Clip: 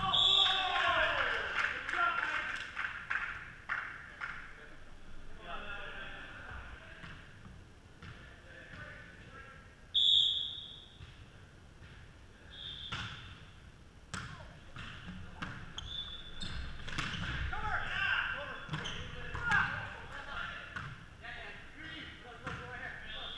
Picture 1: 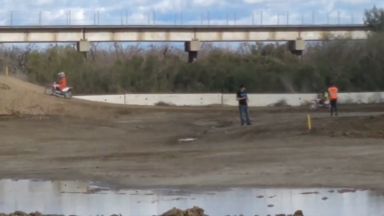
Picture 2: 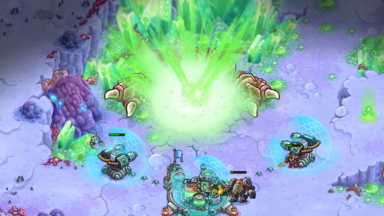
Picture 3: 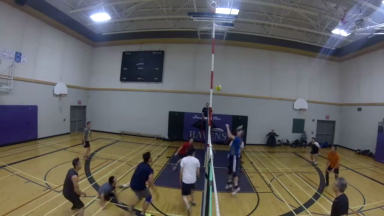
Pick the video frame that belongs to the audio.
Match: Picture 3